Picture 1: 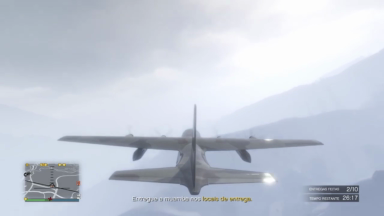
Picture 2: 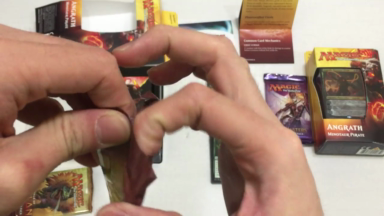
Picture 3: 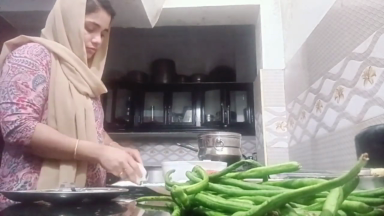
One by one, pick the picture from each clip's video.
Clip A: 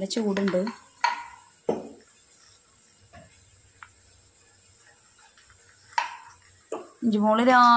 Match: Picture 3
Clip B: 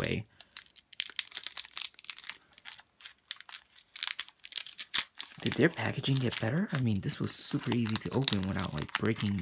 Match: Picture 2